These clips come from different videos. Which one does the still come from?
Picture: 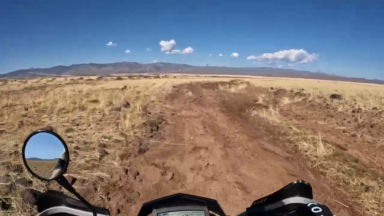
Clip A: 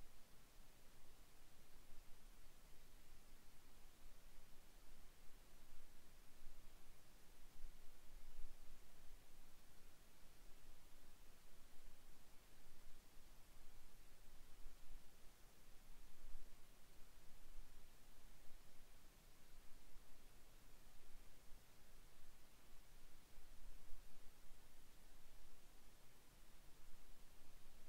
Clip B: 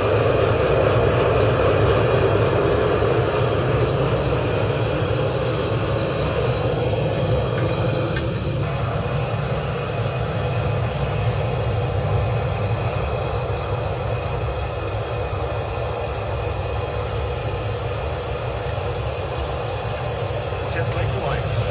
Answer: A